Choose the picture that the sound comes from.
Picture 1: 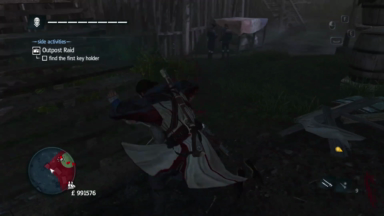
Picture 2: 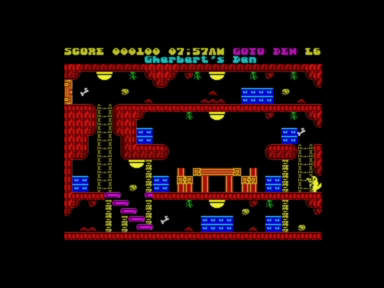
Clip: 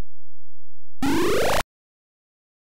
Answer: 2